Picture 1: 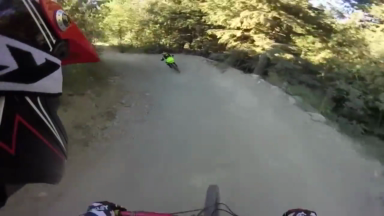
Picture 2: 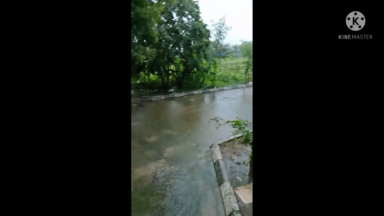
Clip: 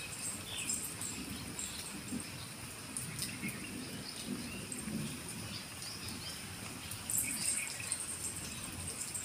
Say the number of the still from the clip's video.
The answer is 2